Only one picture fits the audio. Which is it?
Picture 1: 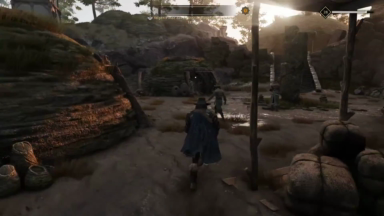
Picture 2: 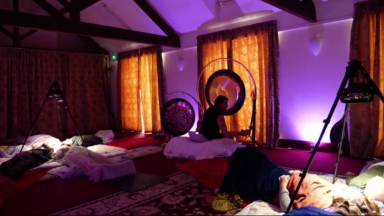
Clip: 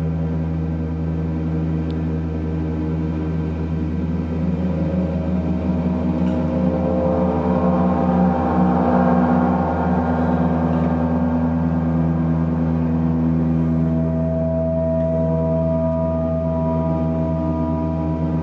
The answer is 2